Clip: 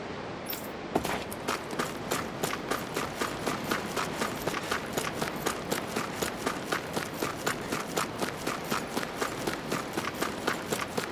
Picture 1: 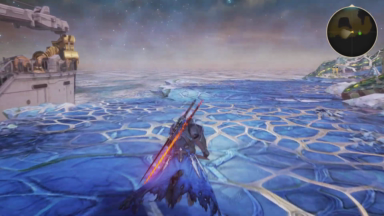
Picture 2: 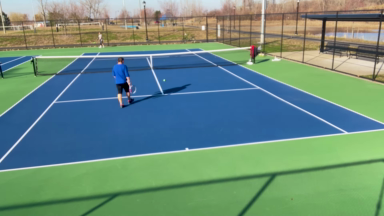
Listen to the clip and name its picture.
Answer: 1